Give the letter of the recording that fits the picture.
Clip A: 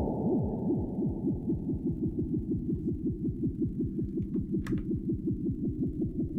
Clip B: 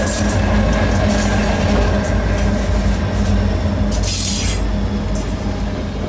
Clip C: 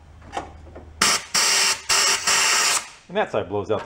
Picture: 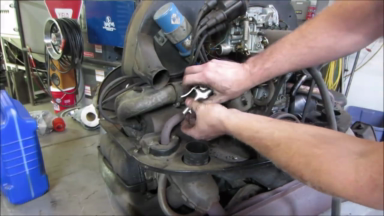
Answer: C